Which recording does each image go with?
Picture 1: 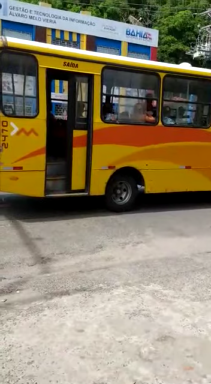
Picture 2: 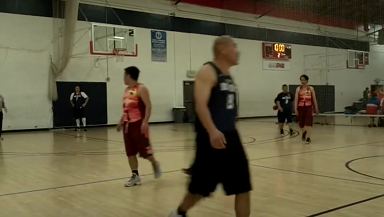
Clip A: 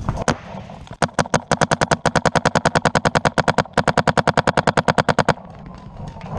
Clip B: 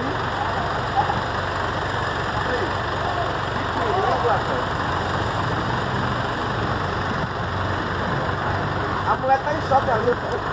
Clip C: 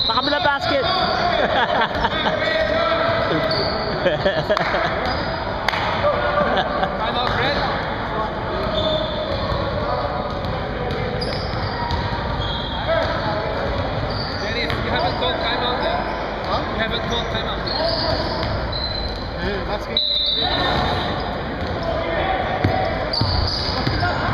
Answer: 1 B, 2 C